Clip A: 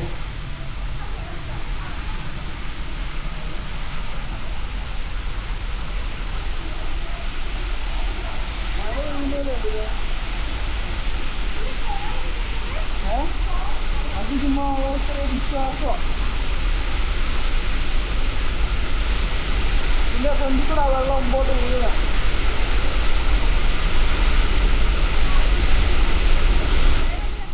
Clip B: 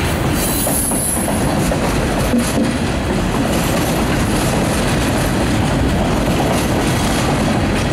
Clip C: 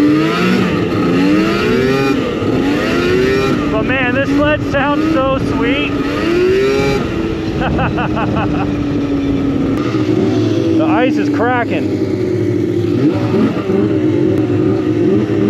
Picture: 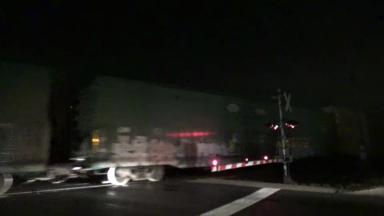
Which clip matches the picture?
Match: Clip B